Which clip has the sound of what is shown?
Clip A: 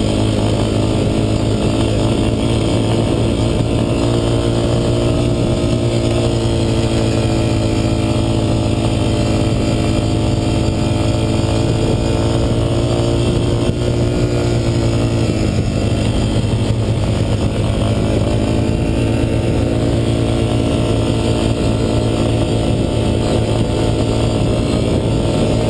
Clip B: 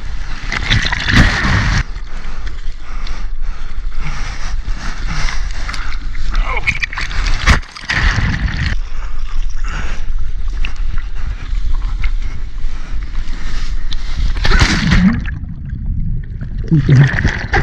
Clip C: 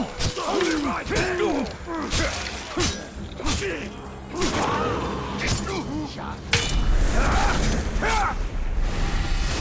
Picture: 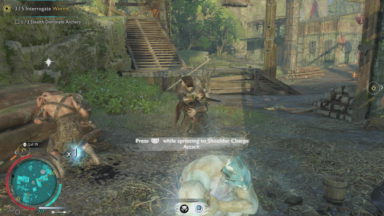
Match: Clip C